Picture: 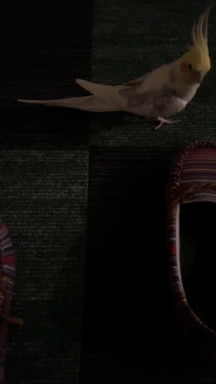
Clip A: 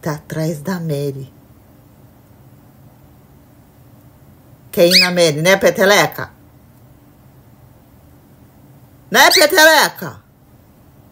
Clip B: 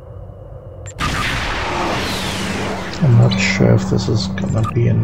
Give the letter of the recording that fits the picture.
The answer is A